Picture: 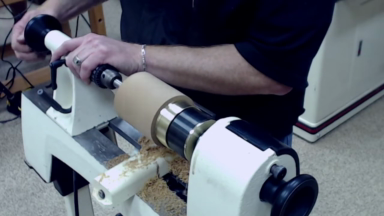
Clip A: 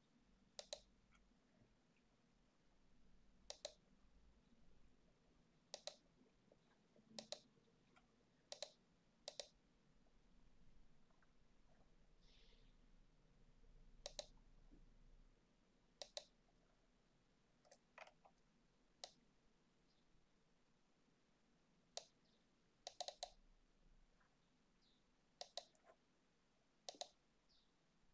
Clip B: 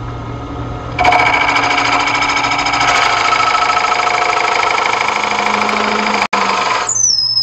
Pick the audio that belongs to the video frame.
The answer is B